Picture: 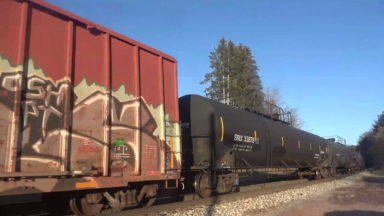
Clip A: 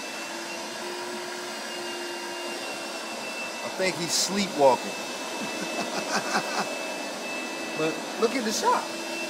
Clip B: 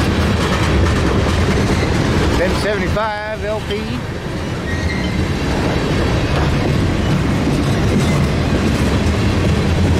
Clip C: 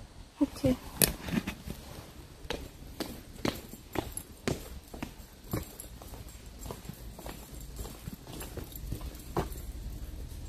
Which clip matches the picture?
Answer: B